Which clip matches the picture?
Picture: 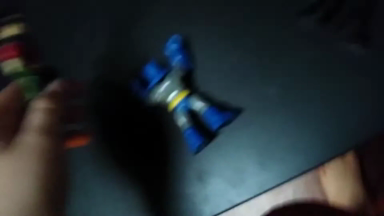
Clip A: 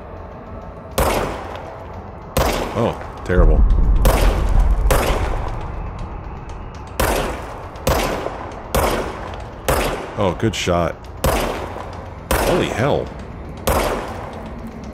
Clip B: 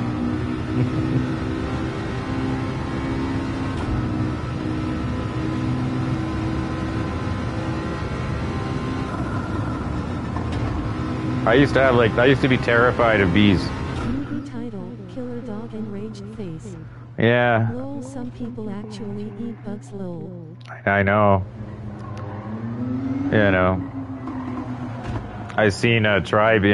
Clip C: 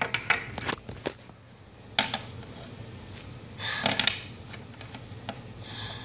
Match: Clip C